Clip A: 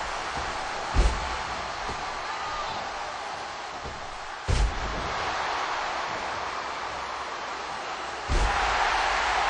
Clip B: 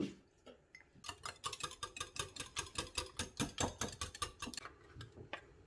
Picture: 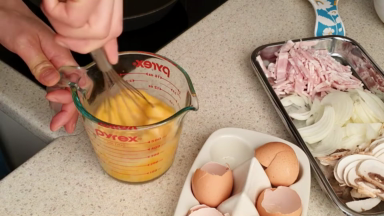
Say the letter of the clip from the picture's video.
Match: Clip B